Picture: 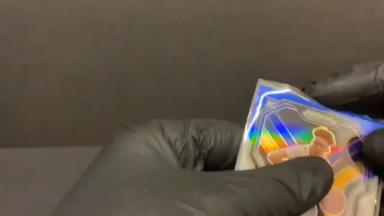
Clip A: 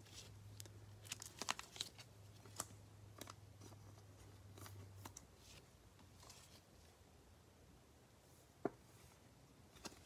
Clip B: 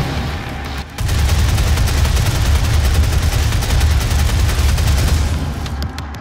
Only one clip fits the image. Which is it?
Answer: A